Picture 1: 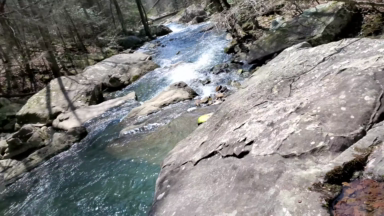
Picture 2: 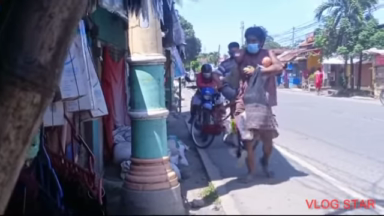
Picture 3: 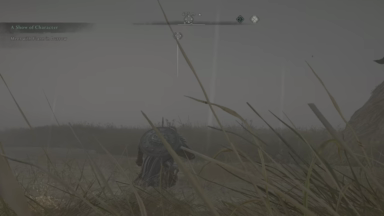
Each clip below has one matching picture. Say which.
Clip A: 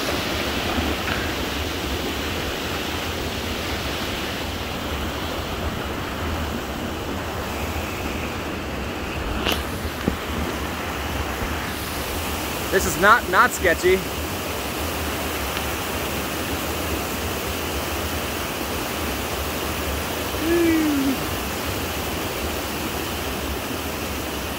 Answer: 1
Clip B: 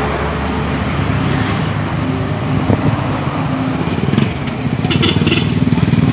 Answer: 2